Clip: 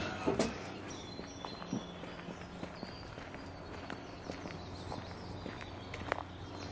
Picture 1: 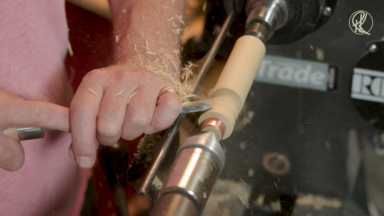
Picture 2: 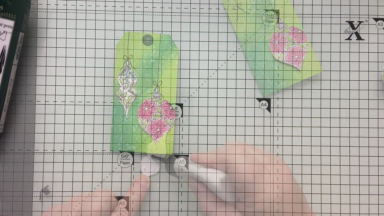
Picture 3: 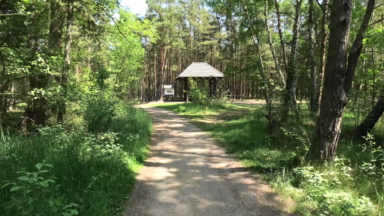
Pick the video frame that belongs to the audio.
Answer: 3